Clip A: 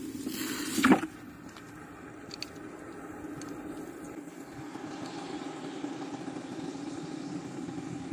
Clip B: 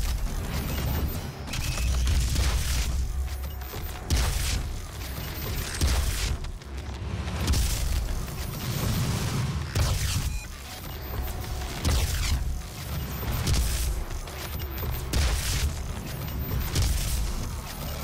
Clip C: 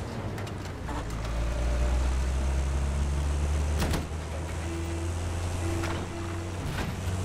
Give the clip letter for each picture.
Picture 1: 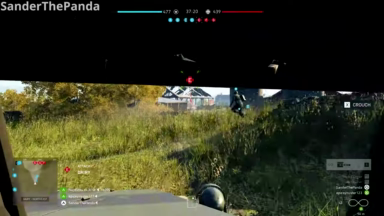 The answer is C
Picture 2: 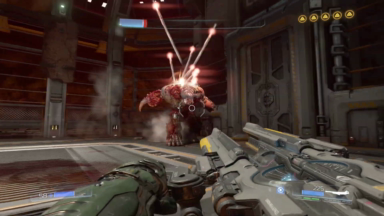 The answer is B